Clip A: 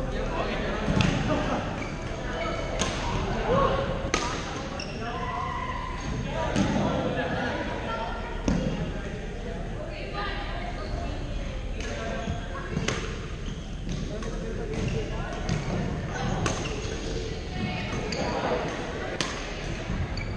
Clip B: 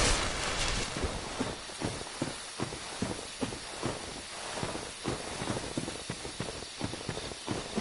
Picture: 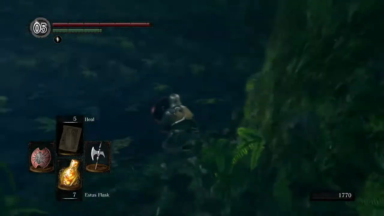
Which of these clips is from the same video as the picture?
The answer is B